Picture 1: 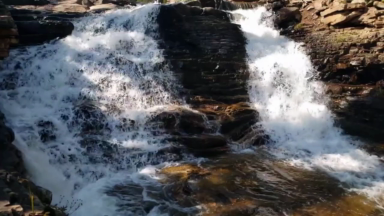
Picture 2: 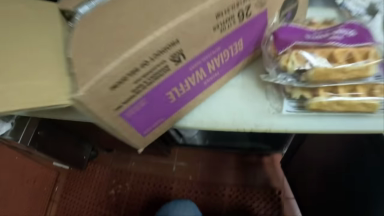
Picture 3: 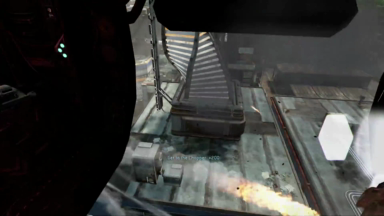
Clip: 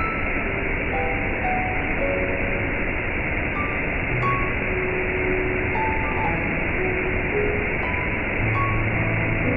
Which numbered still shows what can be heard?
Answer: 1